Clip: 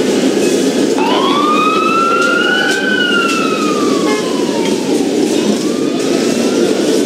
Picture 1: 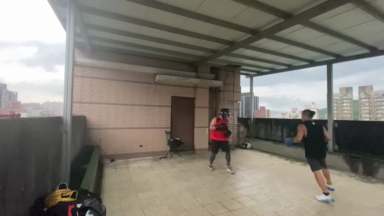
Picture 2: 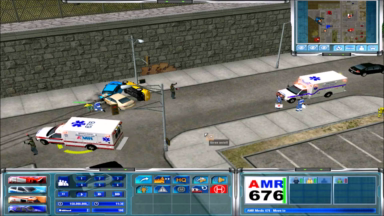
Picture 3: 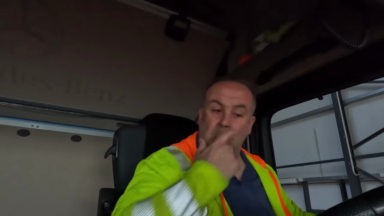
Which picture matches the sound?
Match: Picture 2